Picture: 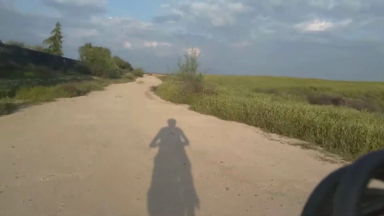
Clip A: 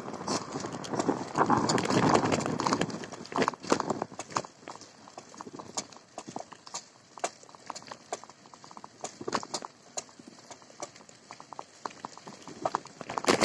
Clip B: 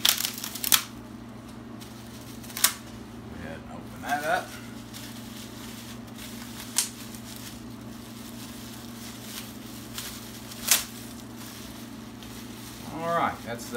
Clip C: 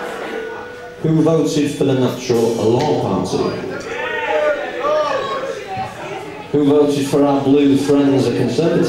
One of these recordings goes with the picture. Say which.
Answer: A